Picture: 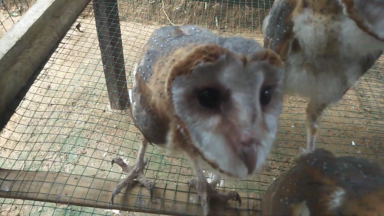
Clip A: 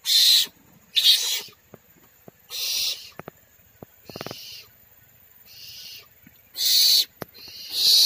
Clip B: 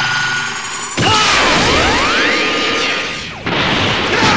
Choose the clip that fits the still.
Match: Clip A